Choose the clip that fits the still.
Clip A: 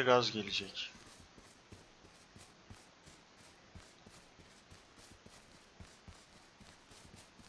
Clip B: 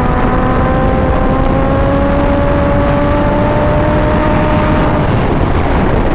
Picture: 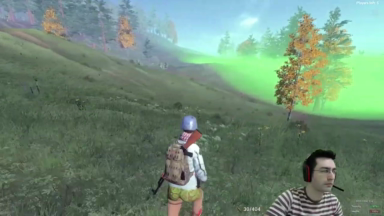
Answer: A